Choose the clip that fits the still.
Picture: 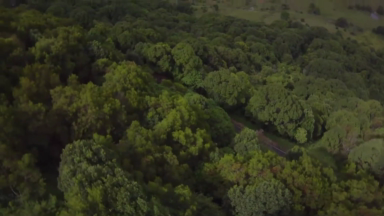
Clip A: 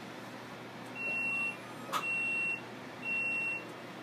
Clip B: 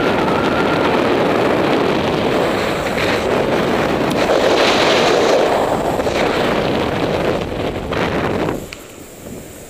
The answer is B